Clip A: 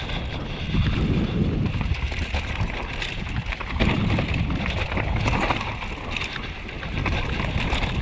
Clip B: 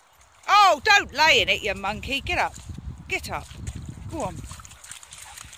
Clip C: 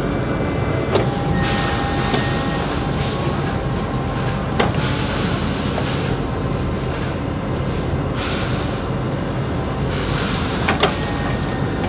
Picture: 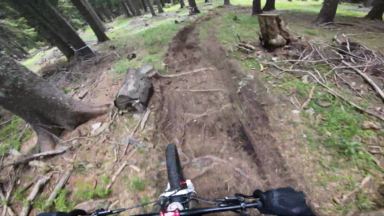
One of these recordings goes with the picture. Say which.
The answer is A